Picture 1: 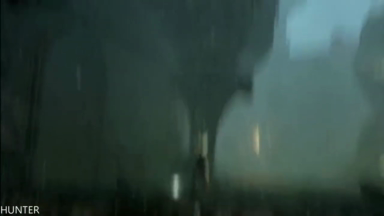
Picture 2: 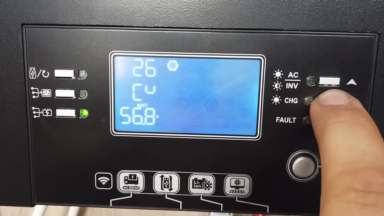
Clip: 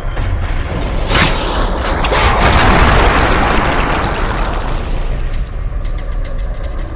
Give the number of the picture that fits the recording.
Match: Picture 1